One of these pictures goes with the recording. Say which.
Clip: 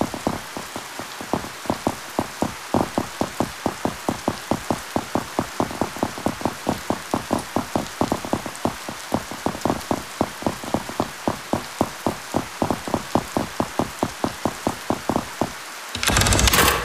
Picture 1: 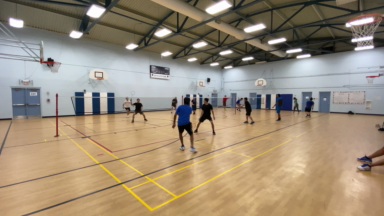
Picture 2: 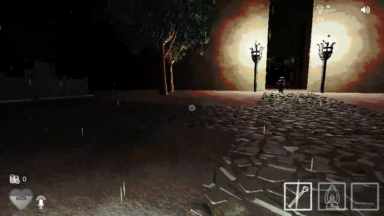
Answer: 2